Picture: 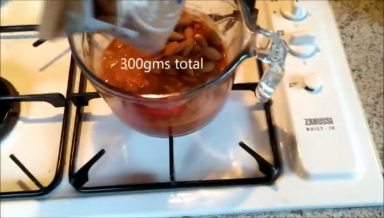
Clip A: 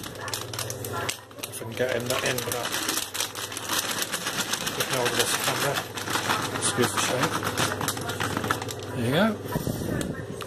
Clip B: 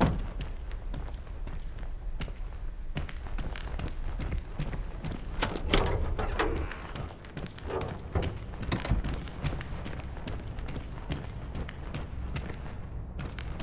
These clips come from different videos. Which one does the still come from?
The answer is A